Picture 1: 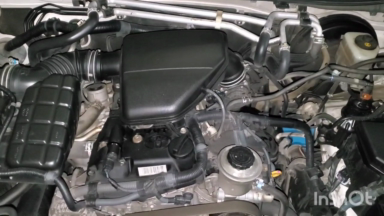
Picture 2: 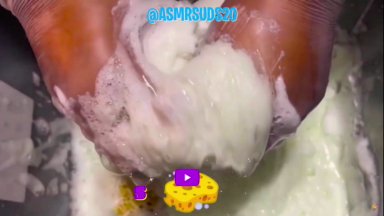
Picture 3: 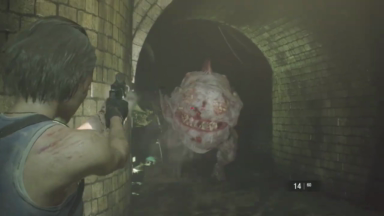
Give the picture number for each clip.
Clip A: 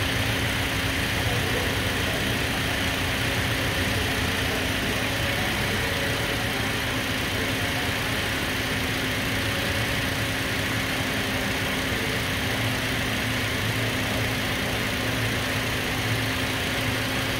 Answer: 1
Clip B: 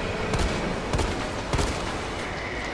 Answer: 3